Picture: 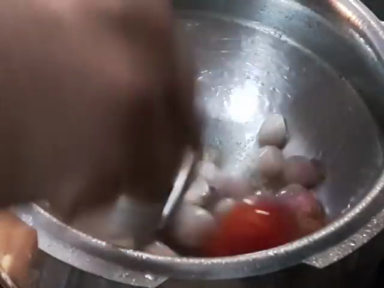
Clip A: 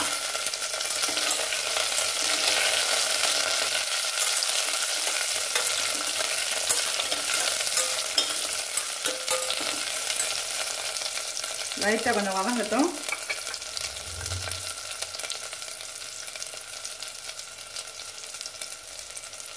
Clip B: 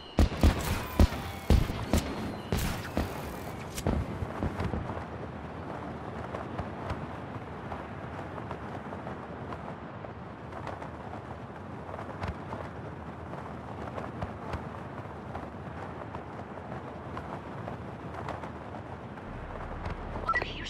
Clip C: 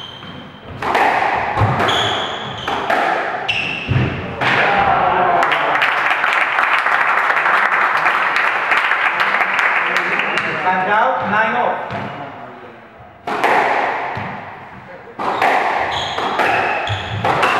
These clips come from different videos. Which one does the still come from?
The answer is A